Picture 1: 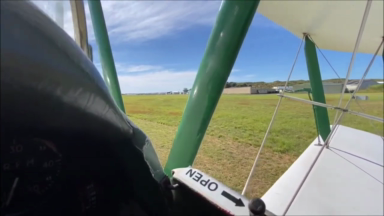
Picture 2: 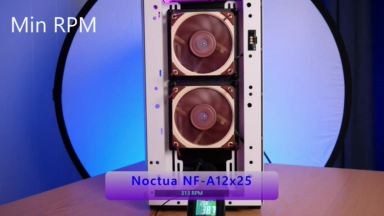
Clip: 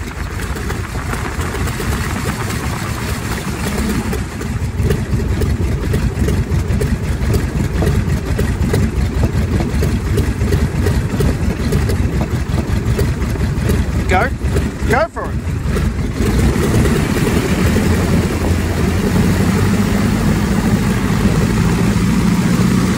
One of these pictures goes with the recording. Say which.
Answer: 1